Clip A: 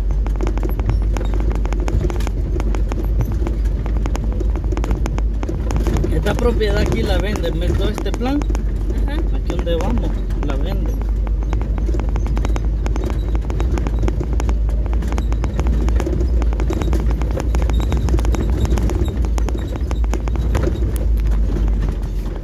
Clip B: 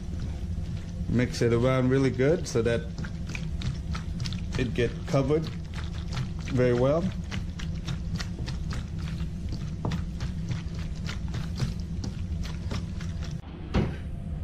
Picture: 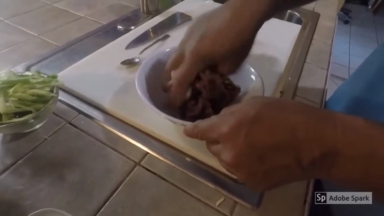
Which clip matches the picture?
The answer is B